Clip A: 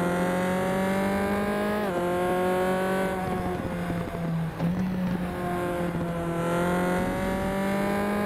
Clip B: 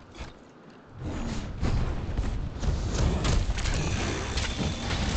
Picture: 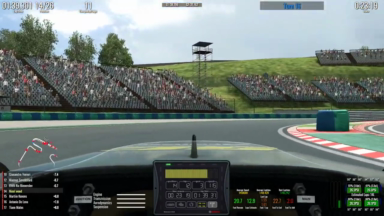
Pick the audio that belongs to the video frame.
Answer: A